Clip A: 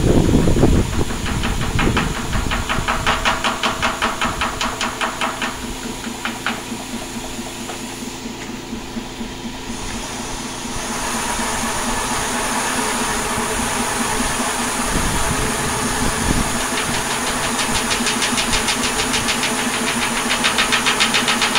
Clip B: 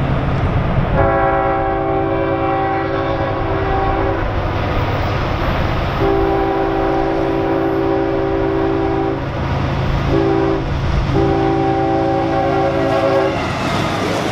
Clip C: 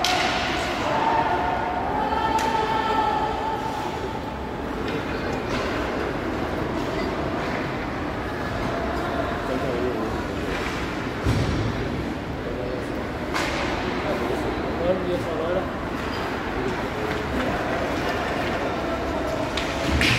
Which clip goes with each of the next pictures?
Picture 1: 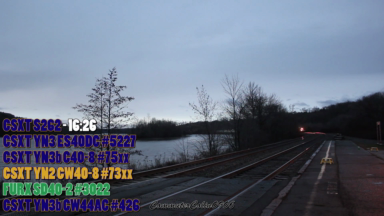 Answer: B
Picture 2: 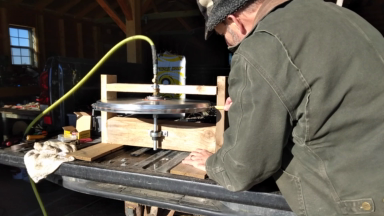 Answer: A